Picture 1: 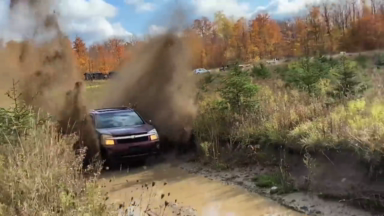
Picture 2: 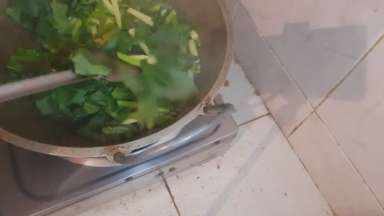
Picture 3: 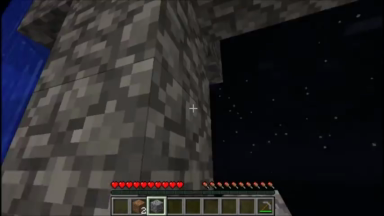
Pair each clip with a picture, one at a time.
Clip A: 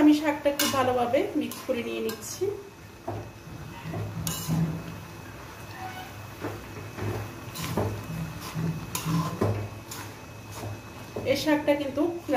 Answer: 2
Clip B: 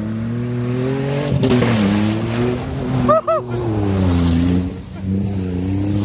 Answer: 1